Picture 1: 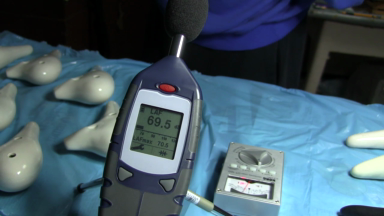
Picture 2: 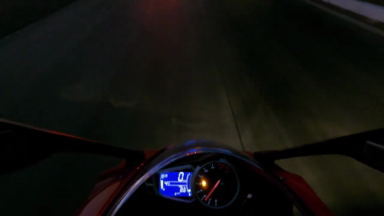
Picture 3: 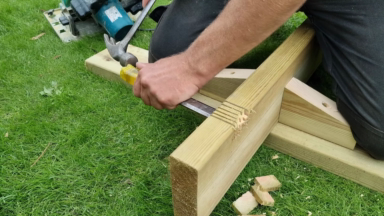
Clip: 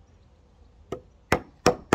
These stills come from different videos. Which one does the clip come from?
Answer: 3